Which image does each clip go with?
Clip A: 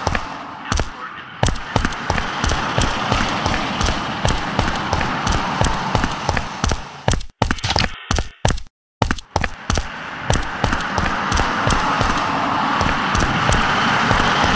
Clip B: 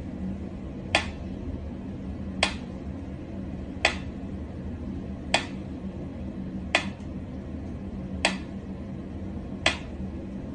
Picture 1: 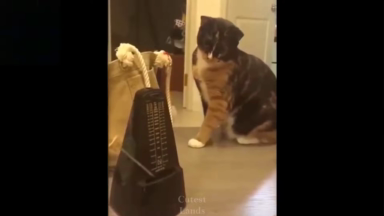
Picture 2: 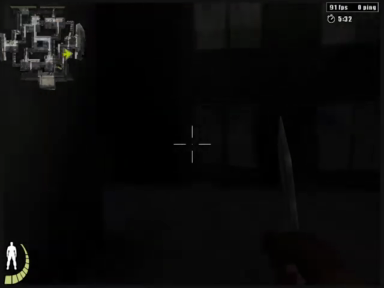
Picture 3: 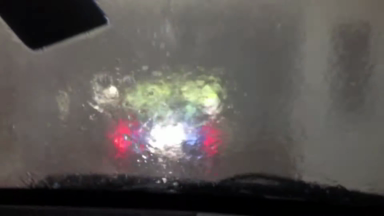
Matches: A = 2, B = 1